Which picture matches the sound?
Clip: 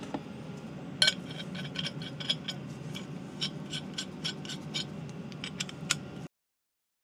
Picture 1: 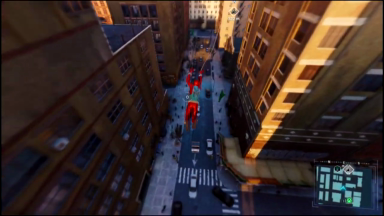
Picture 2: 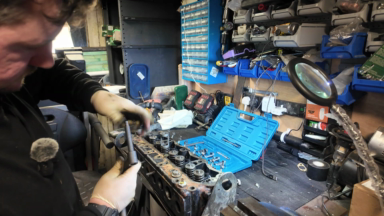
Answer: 2